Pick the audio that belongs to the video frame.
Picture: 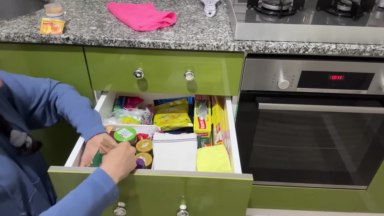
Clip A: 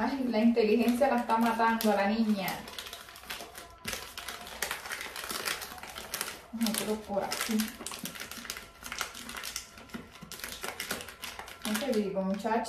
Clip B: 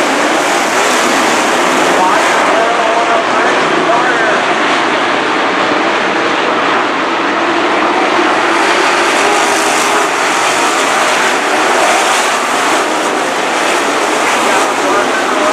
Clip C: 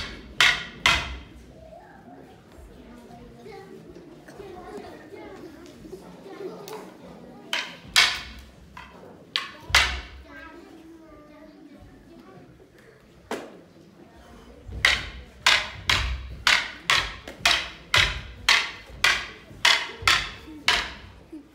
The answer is A